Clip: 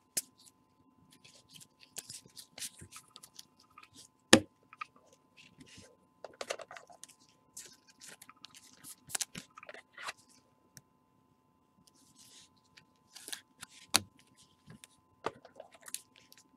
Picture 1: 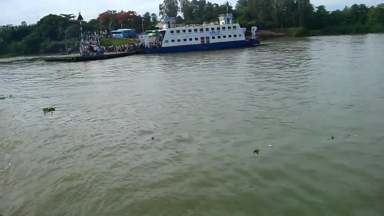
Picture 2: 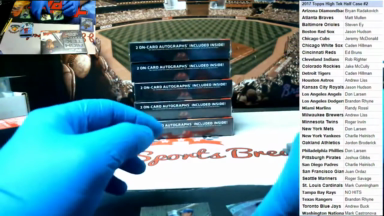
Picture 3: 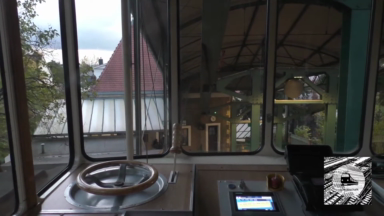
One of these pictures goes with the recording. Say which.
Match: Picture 2